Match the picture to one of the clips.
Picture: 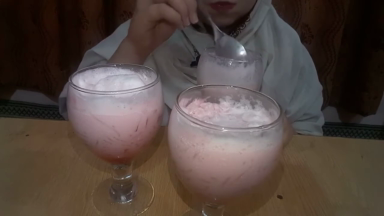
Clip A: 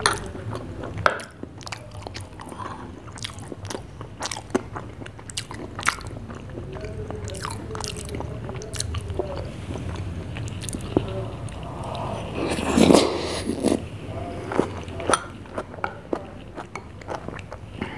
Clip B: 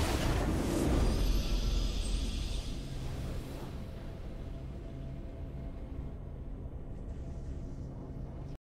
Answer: A